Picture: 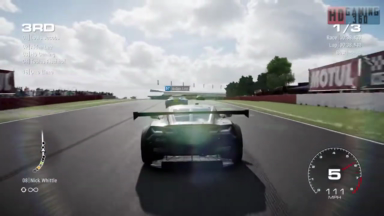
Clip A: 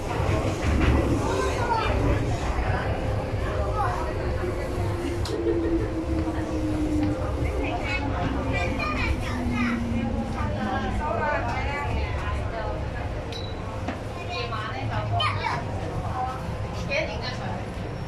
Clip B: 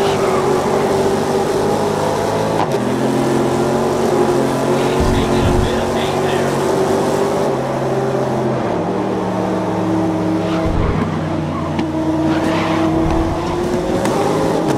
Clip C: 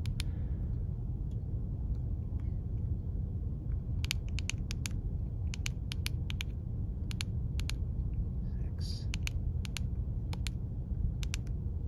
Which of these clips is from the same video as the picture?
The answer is B